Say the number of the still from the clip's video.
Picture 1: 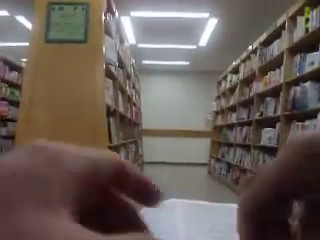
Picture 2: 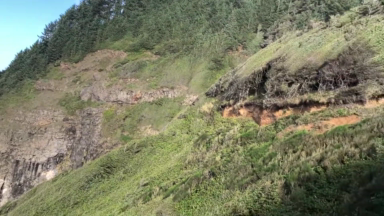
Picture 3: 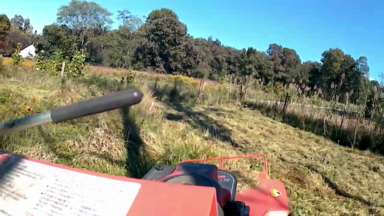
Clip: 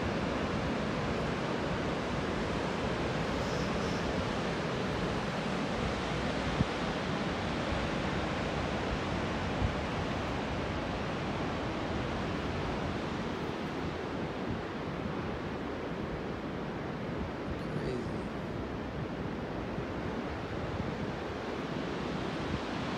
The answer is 2